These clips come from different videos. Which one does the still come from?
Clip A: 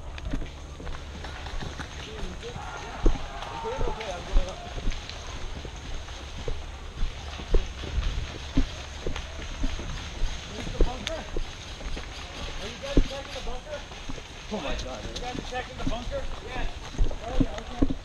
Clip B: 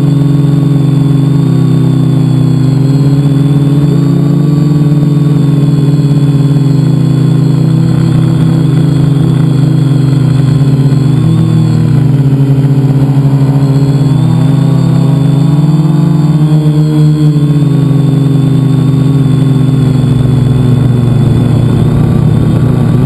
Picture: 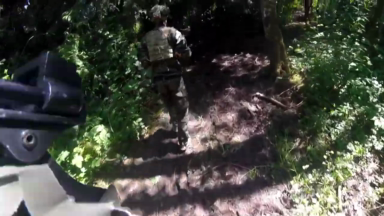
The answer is A